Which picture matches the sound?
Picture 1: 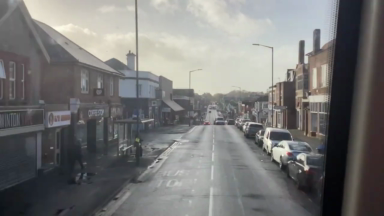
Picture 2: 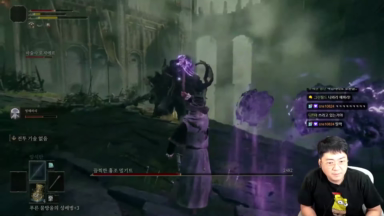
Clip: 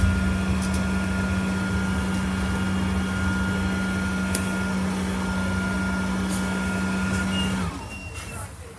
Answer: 1